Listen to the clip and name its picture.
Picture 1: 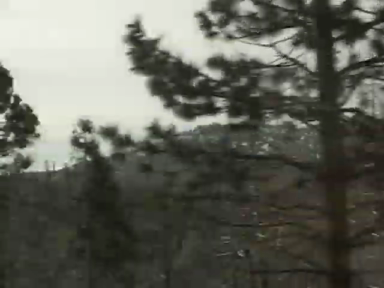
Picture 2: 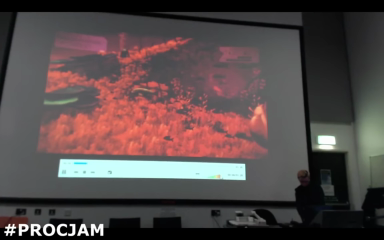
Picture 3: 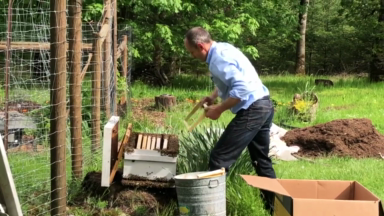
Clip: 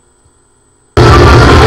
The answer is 2